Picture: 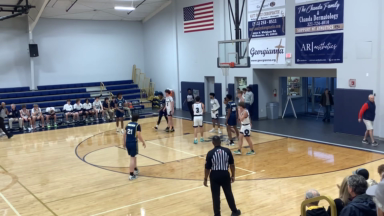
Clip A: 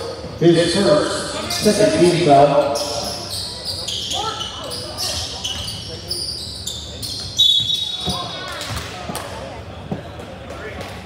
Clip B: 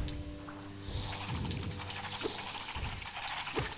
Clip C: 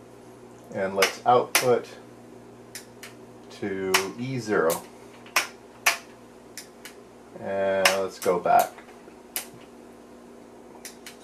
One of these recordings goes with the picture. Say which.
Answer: A